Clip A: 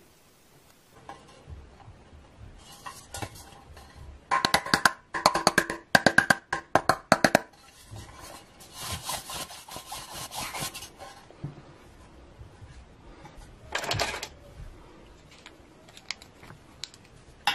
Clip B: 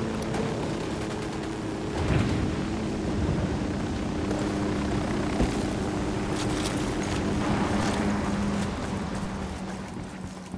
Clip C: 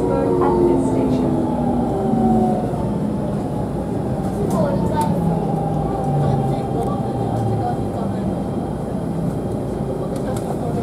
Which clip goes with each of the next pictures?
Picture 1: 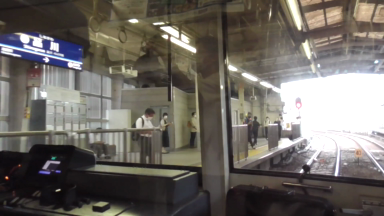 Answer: C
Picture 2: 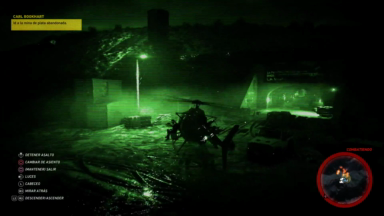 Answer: B